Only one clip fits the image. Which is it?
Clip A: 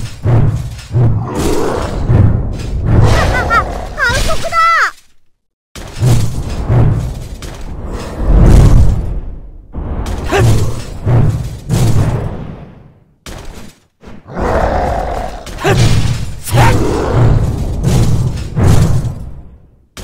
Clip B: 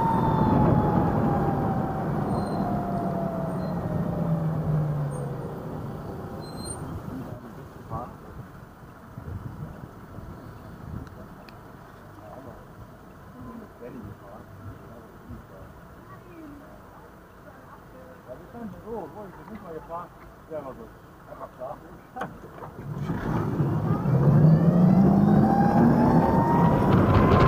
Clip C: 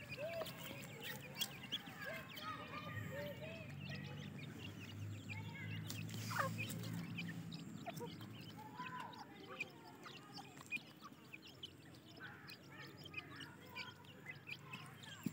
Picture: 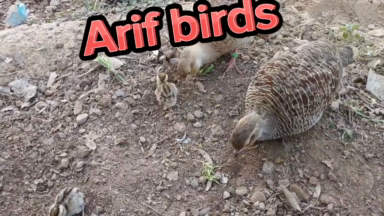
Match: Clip C